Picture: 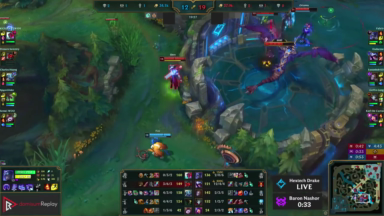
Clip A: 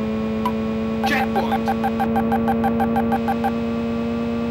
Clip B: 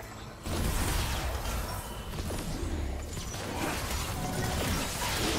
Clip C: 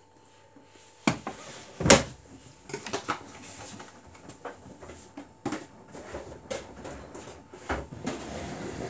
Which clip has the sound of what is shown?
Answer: B